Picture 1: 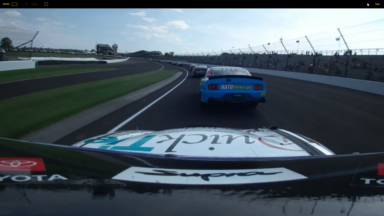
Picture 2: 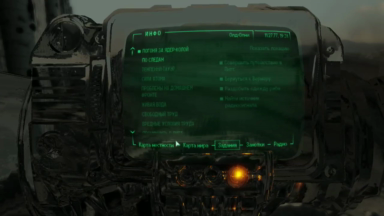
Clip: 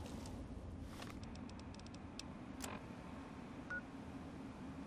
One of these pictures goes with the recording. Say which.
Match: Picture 2